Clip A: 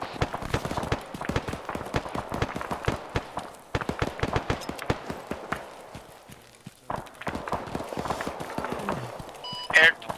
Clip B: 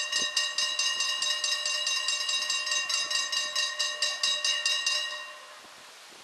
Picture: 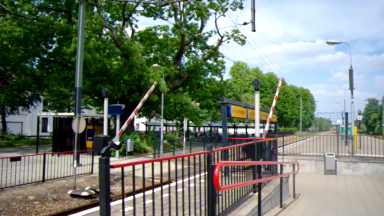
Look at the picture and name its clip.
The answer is B